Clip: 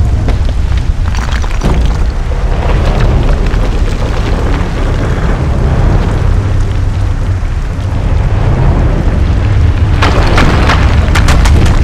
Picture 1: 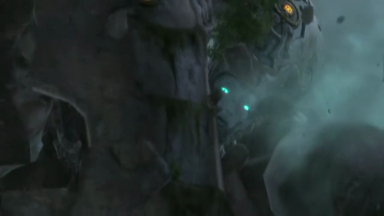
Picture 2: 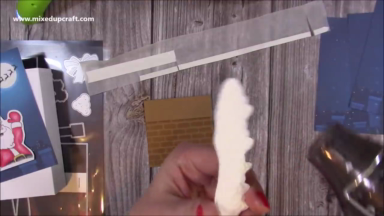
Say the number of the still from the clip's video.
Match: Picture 1